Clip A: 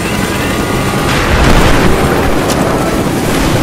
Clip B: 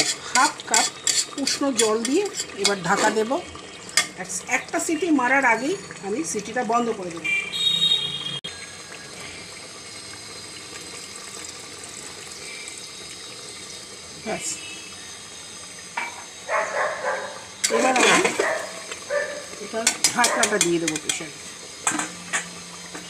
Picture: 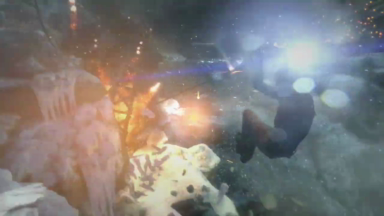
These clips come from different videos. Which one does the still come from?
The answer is A